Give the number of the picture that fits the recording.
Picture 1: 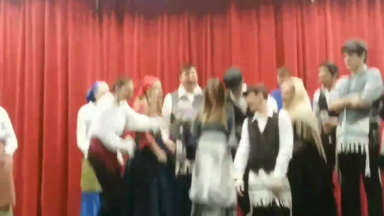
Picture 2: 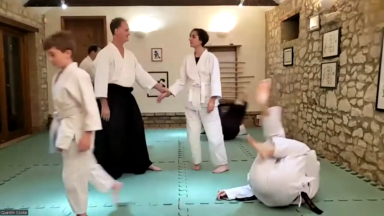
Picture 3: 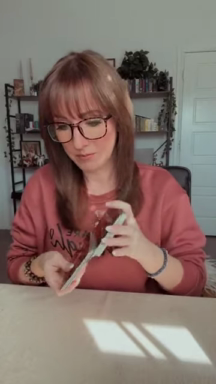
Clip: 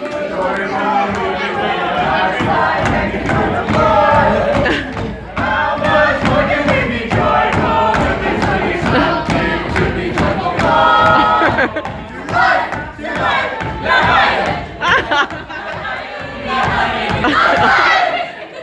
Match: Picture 1